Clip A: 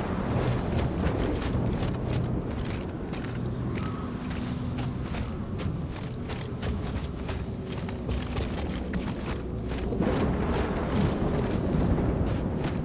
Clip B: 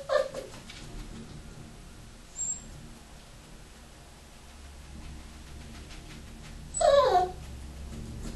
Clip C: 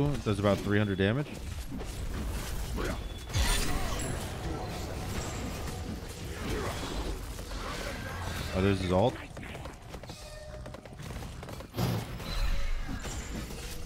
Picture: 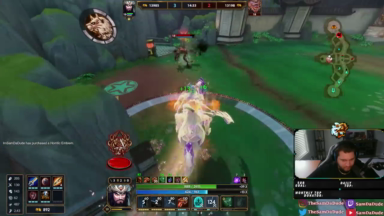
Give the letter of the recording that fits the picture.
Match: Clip C